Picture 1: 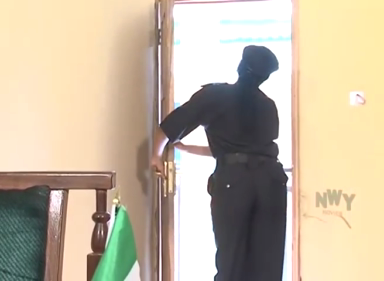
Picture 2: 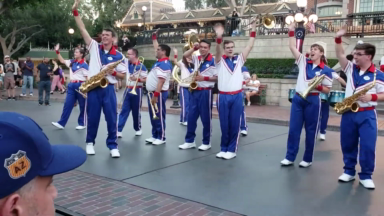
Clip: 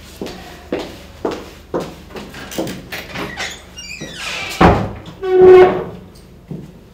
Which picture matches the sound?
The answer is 1